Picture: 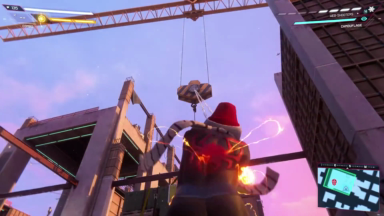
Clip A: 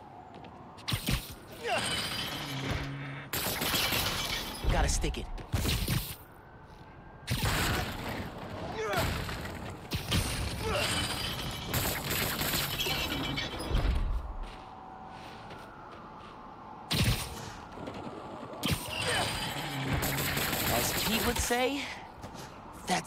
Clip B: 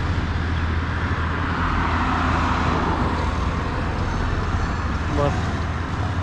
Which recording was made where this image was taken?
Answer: A